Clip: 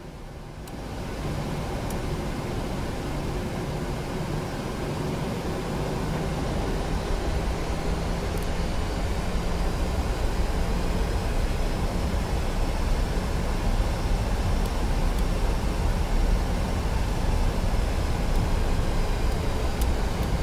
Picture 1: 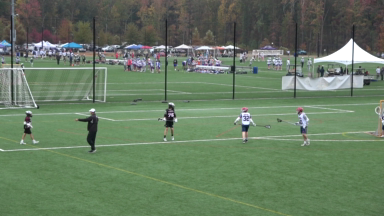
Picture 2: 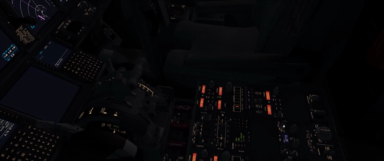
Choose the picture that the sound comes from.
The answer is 2